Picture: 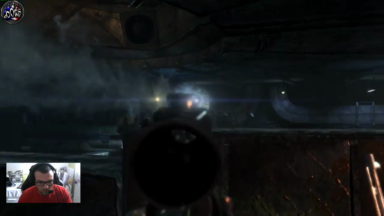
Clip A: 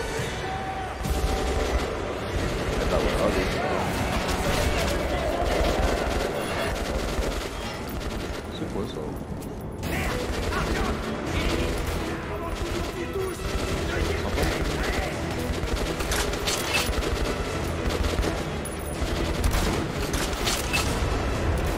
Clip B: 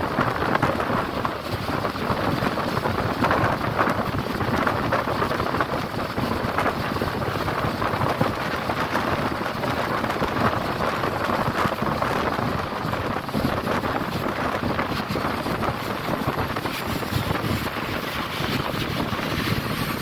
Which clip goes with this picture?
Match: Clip A